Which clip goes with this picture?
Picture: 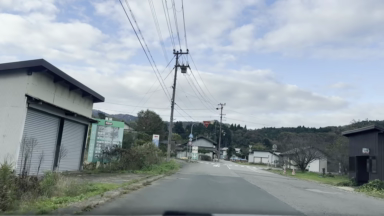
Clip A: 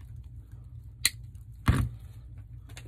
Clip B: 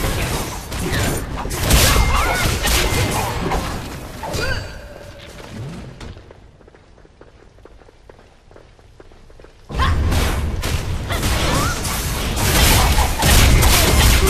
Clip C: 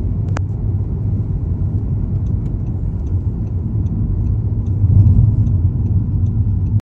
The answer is C